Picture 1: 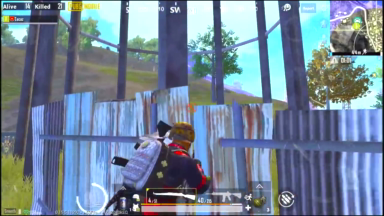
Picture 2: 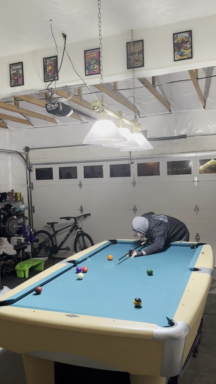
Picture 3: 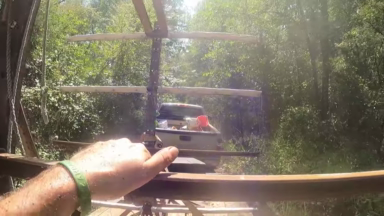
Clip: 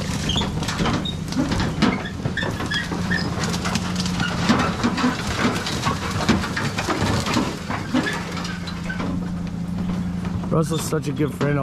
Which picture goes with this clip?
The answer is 3